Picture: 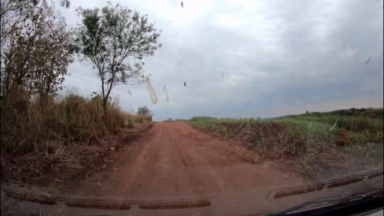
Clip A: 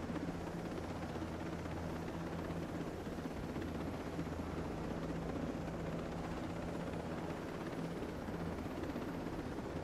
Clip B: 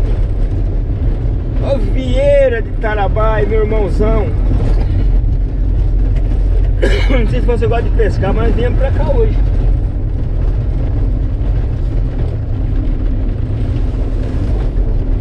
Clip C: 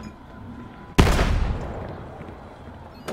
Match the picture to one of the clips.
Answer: B